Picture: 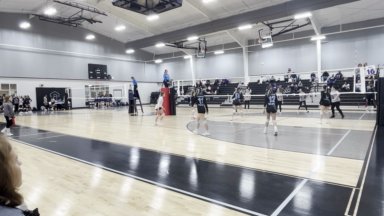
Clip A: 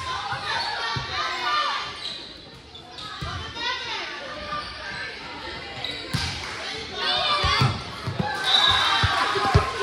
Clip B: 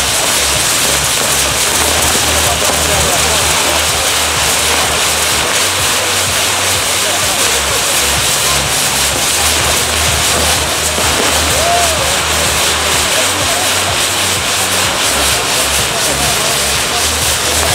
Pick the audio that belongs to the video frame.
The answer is A